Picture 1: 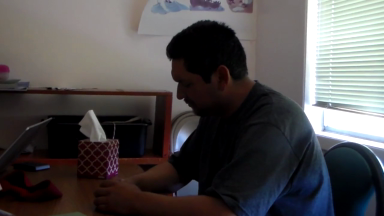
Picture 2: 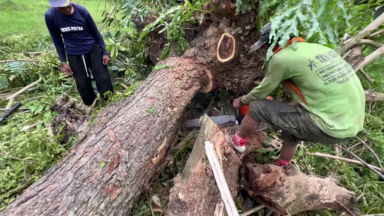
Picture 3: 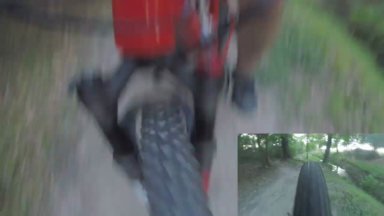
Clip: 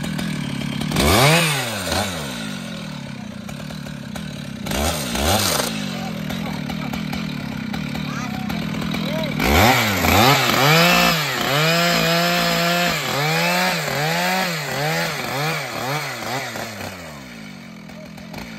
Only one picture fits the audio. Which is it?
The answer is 2